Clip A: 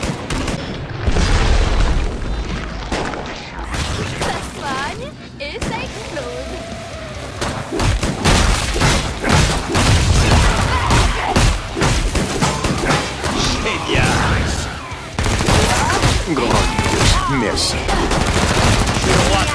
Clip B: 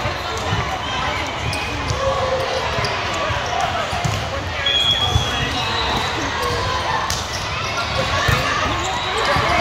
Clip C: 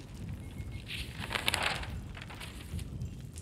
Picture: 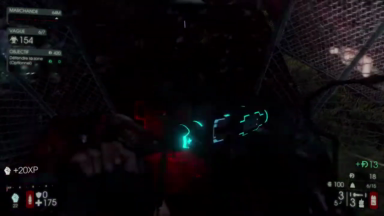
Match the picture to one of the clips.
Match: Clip A